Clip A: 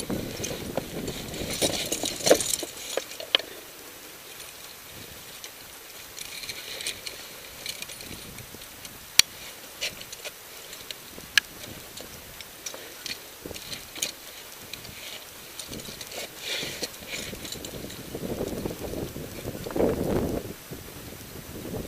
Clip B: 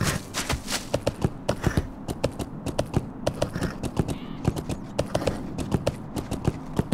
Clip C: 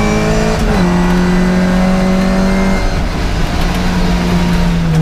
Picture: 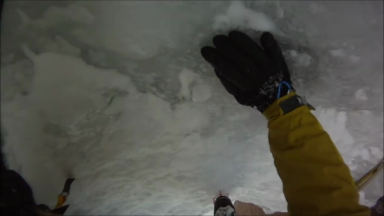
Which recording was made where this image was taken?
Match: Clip A